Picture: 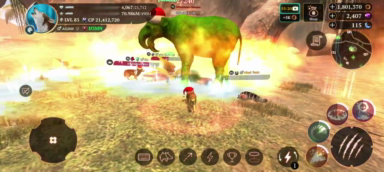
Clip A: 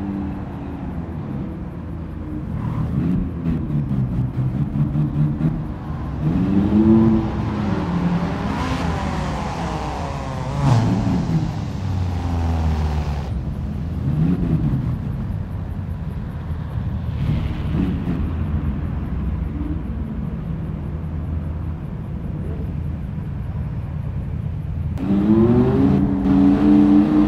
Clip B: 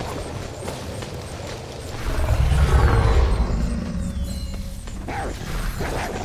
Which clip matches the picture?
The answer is B